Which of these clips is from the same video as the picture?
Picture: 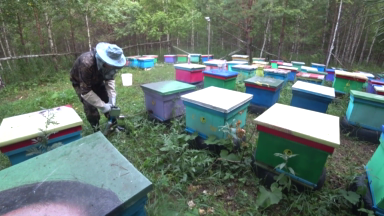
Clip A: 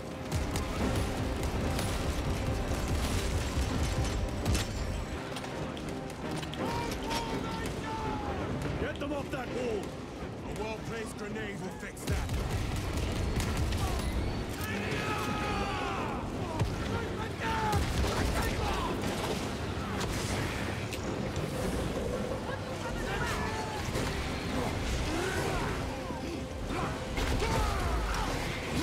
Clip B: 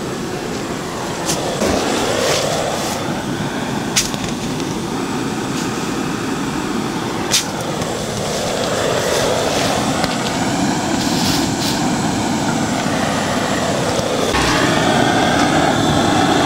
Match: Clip B